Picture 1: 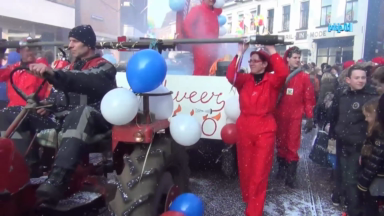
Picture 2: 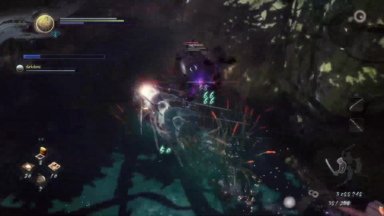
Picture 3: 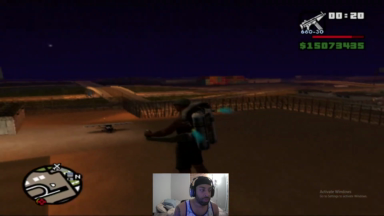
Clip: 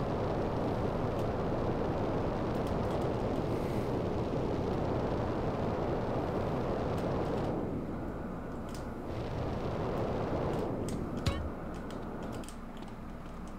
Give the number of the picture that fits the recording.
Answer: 3